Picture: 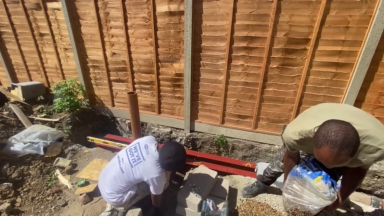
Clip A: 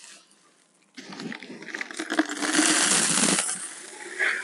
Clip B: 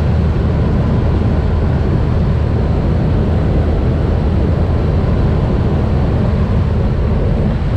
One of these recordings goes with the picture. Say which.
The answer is A